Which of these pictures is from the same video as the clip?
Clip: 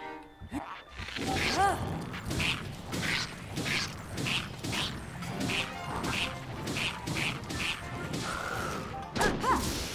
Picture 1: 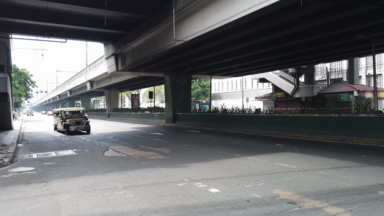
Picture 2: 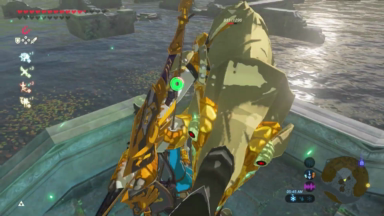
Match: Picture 2